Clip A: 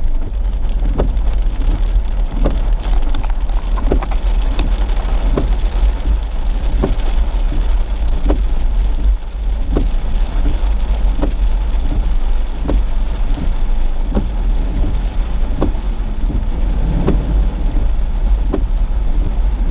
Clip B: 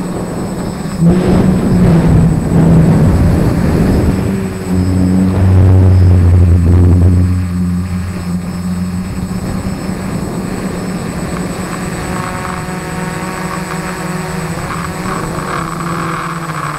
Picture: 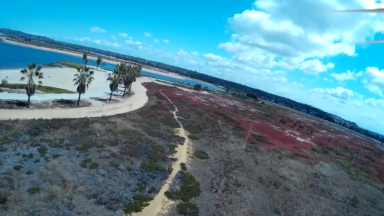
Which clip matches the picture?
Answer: B